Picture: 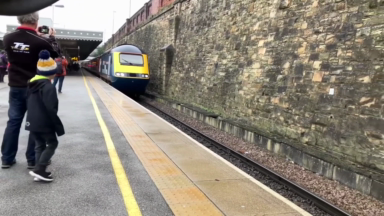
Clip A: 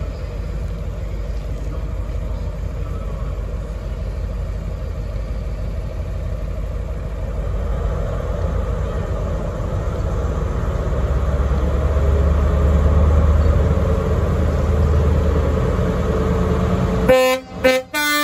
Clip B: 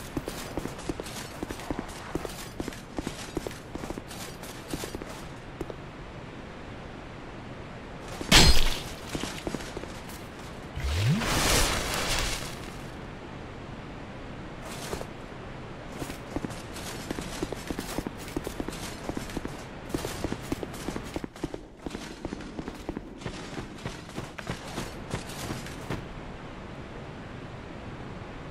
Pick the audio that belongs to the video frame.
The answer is A